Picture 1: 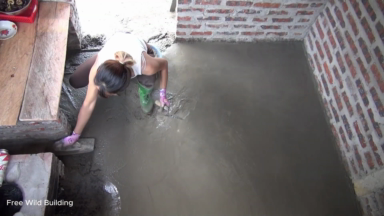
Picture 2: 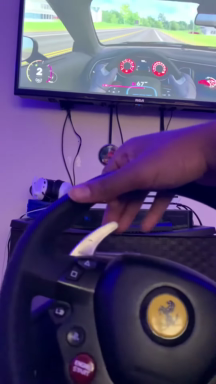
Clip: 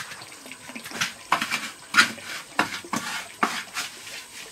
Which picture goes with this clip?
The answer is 1